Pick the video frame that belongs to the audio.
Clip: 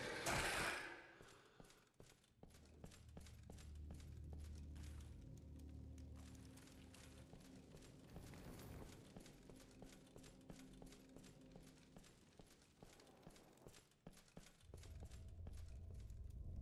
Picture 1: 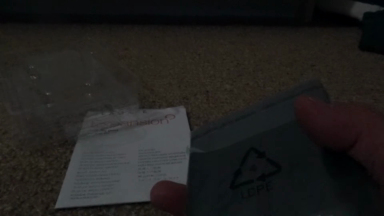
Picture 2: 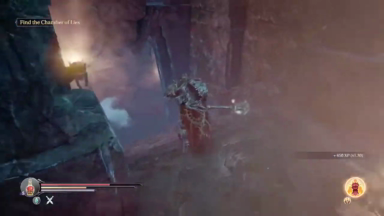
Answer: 2